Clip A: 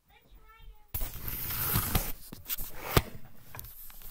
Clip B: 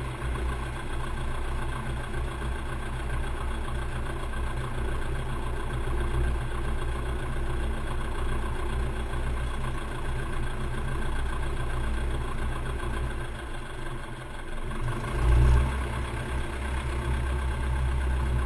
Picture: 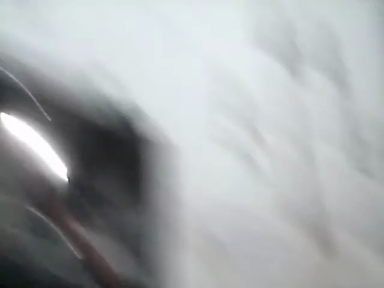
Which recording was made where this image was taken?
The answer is A